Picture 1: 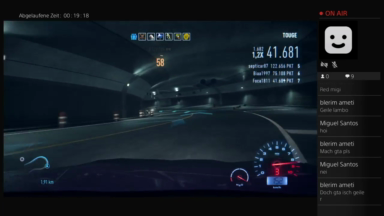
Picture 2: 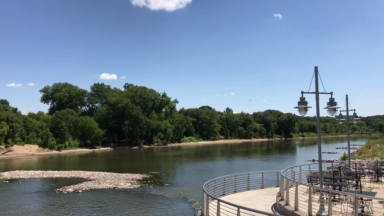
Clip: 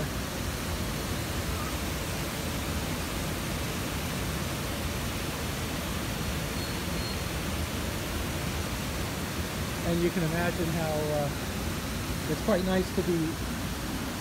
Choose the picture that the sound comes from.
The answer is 2